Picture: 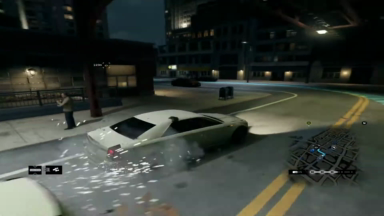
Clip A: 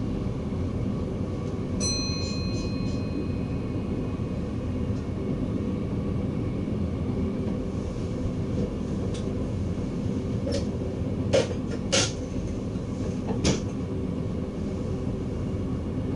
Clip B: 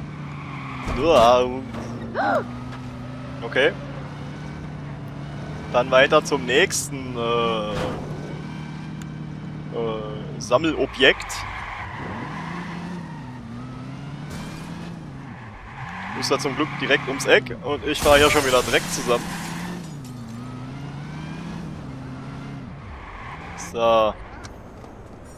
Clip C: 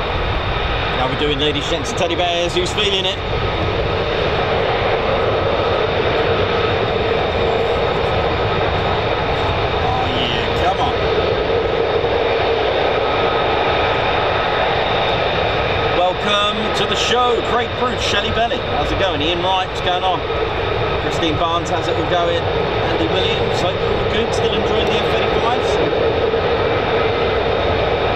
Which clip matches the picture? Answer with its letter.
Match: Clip B